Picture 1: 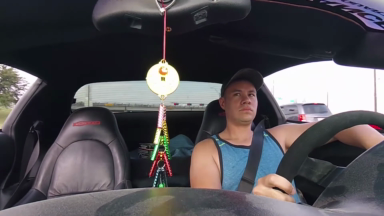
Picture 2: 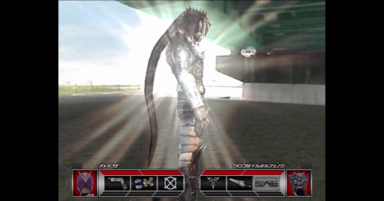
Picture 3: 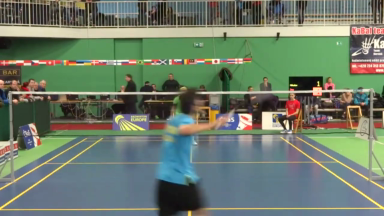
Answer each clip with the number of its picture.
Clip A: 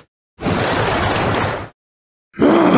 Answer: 2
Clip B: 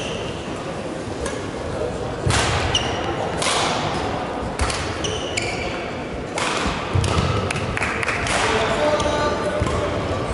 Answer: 3